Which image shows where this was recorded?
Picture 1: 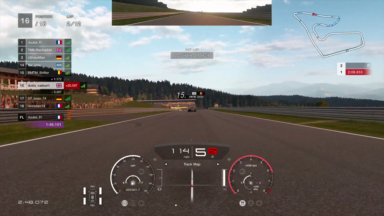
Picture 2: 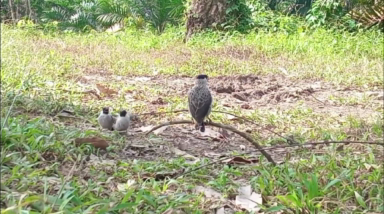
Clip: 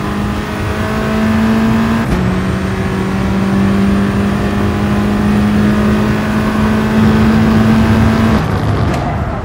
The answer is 1